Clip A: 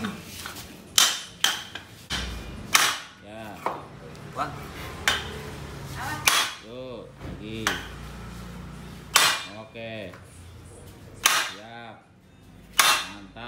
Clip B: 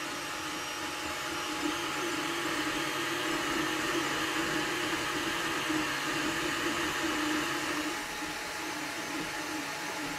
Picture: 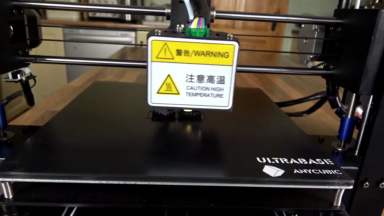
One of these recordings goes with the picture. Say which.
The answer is B